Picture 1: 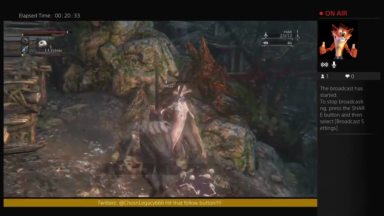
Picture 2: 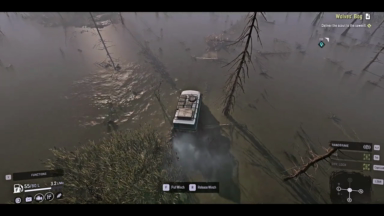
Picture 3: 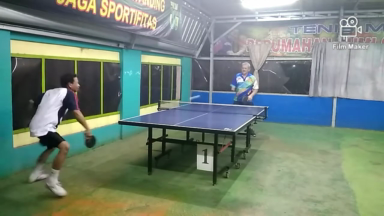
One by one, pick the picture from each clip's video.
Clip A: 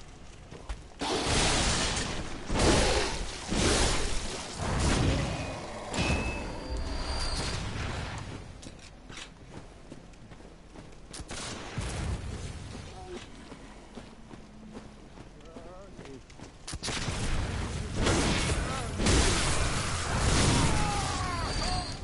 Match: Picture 1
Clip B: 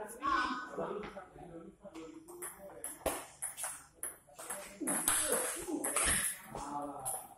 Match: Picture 3